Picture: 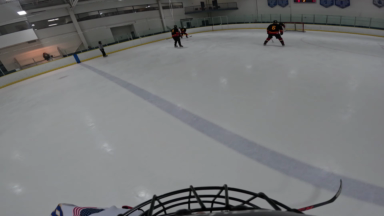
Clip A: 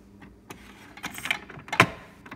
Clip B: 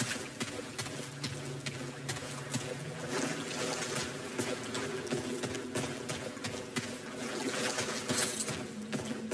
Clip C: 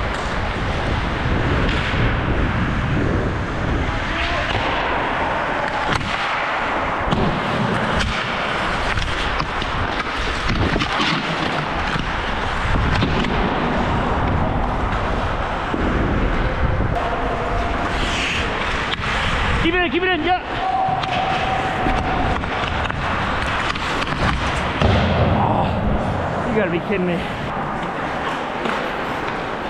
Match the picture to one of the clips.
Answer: C